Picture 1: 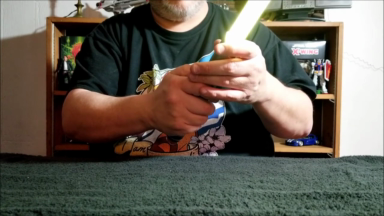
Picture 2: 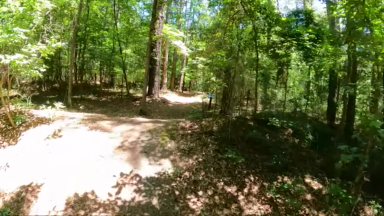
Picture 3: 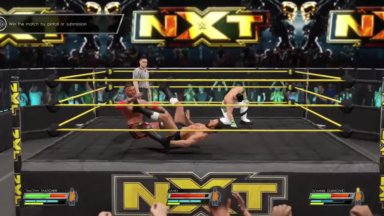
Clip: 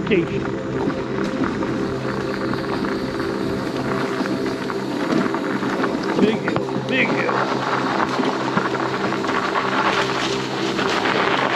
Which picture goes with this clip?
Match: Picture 2